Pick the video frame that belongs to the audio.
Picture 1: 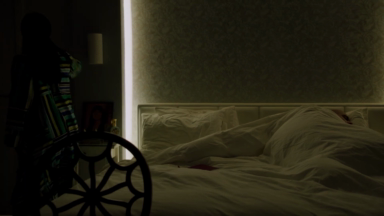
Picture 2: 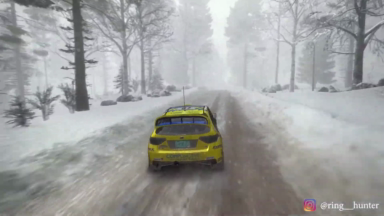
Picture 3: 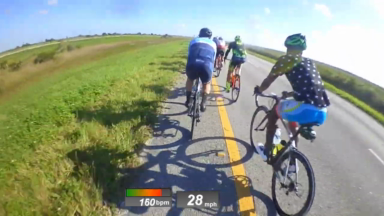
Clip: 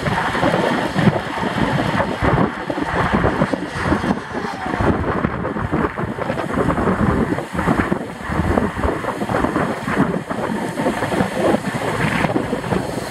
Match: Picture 3